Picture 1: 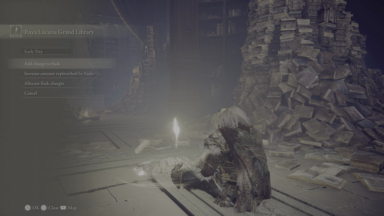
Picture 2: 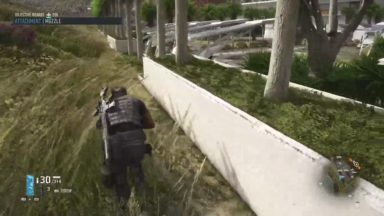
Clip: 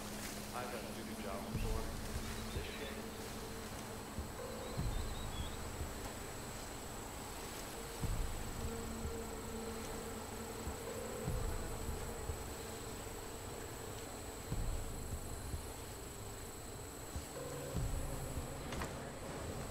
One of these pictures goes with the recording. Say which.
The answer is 2